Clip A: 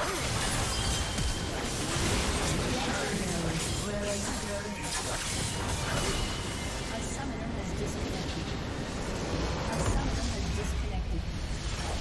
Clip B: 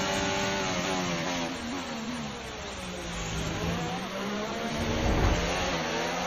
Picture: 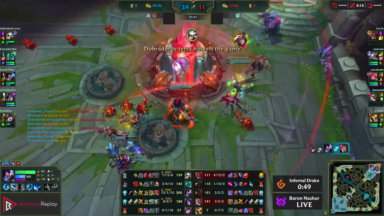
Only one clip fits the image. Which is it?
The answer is A